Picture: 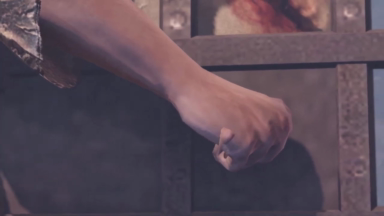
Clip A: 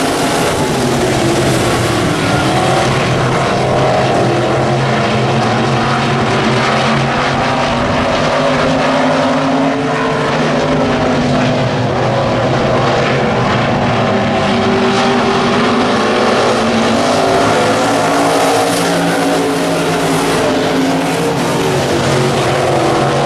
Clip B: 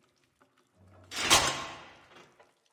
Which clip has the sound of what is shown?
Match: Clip B